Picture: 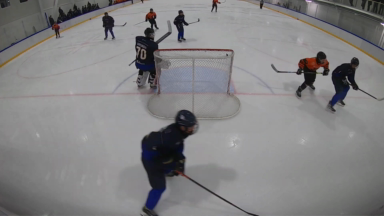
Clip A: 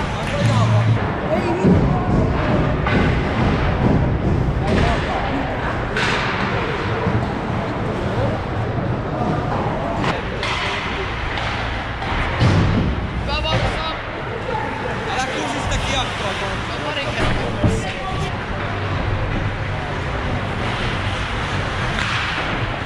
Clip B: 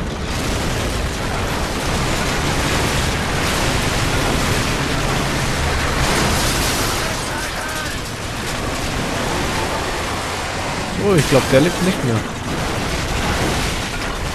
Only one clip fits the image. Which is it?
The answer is A